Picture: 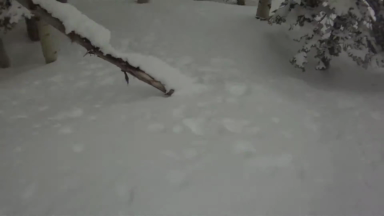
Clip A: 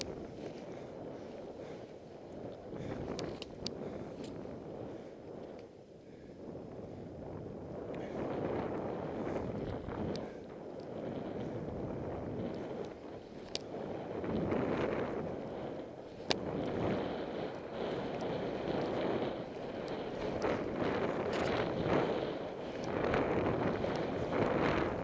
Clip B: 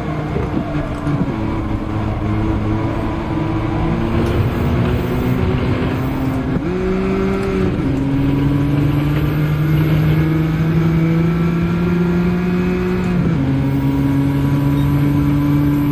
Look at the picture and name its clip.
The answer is A